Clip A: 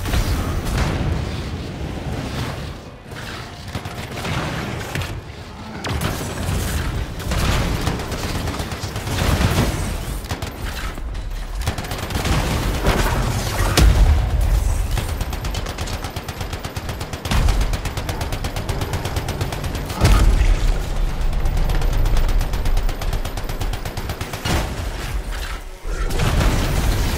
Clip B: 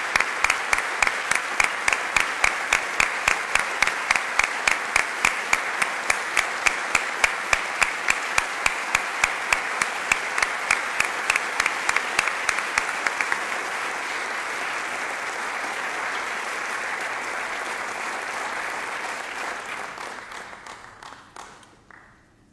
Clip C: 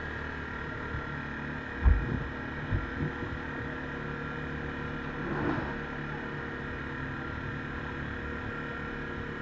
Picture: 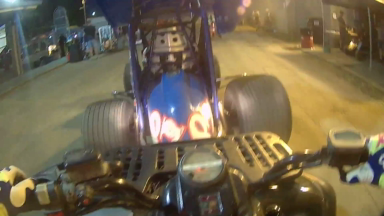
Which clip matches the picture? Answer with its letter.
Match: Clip C